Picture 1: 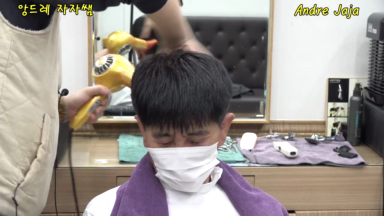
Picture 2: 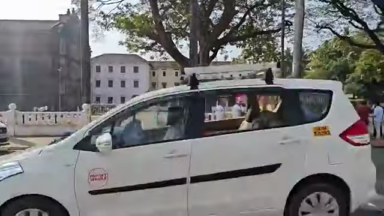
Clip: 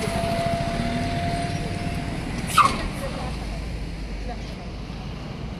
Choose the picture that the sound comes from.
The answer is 2